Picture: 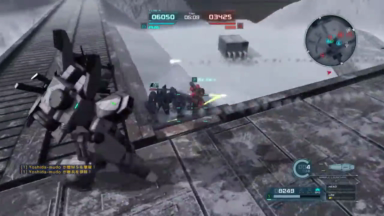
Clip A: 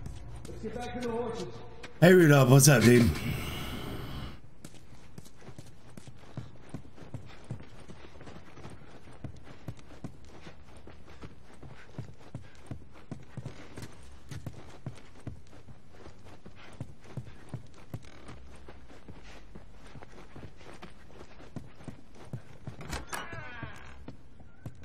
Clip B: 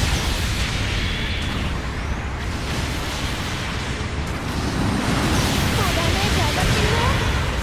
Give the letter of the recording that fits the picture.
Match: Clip B